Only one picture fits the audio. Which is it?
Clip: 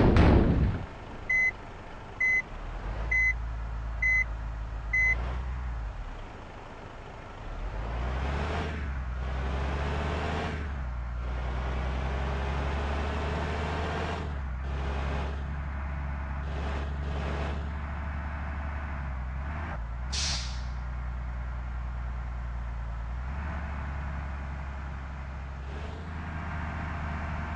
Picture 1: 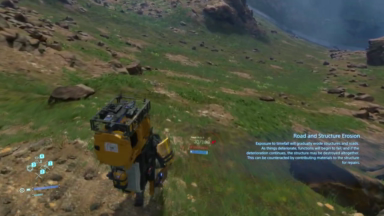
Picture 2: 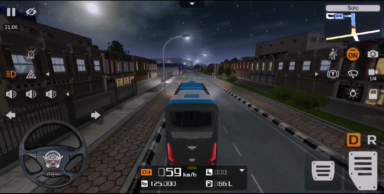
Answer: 2